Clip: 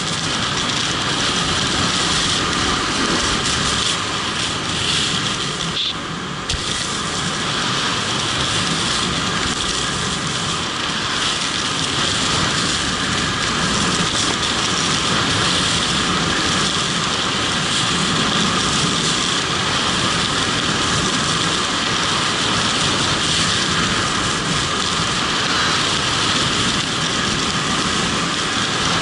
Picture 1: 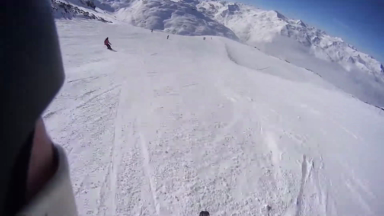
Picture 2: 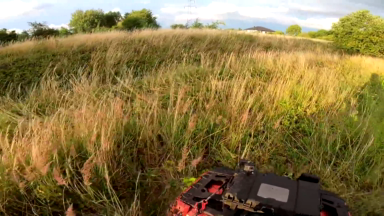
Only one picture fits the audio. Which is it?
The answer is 1